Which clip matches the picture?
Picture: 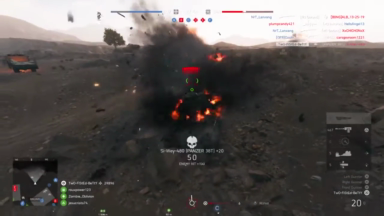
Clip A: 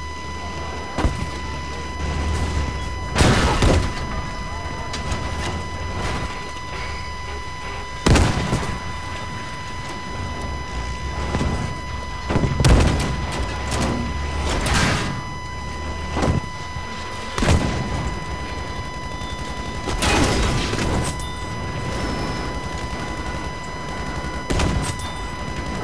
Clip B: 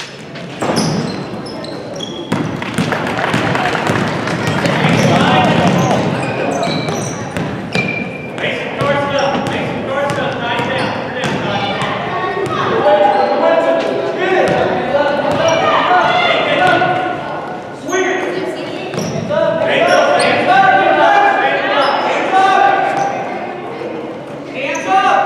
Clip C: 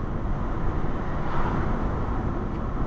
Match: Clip A